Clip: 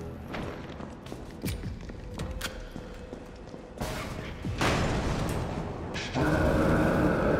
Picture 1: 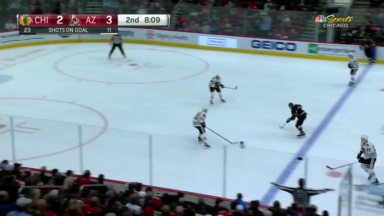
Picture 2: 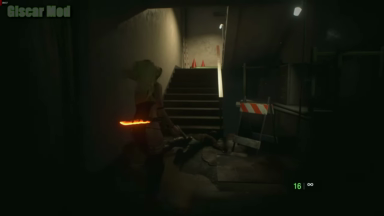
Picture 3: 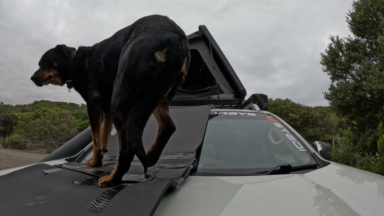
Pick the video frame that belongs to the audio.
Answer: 2